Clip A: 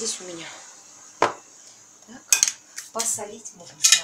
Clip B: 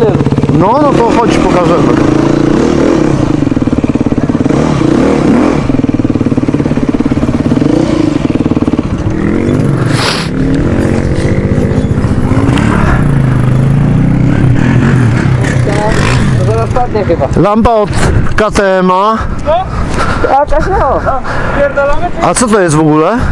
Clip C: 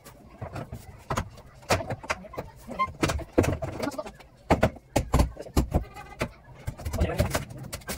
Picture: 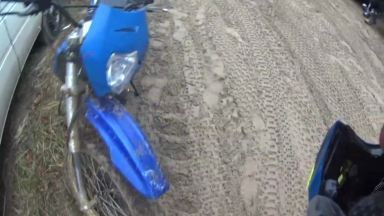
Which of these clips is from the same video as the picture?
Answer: B